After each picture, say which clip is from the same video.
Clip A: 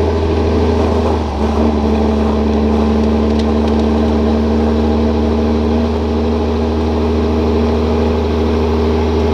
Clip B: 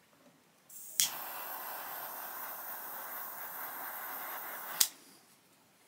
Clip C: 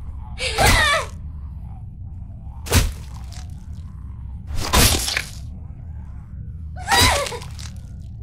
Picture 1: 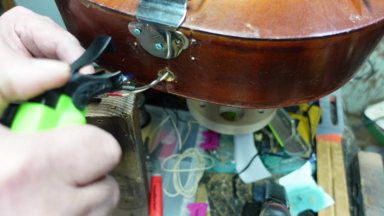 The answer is B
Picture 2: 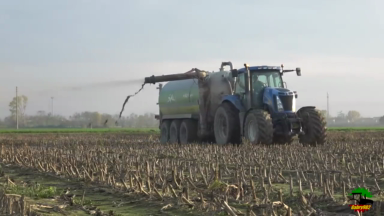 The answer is A